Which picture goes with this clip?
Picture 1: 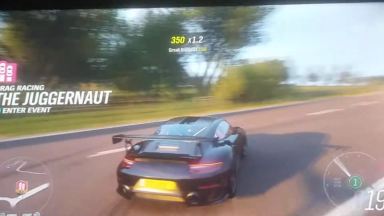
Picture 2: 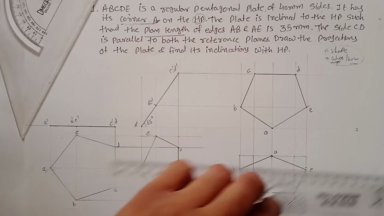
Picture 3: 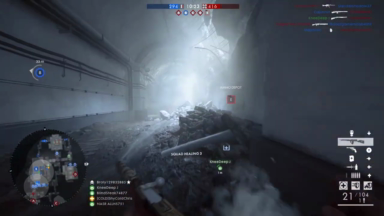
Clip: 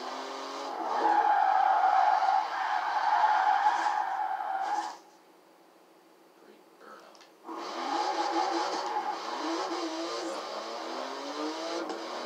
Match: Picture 1